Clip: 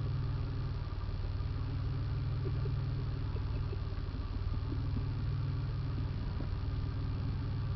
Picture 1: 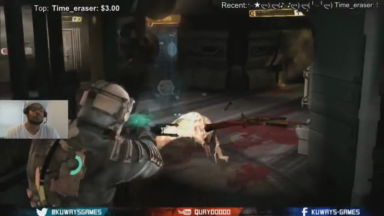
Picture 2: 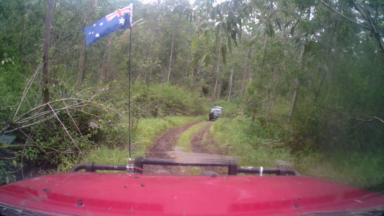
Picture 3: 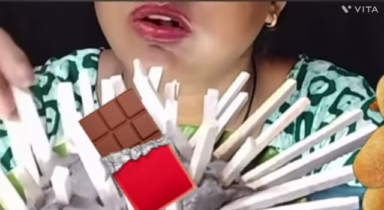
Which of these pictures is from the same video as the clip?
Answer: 2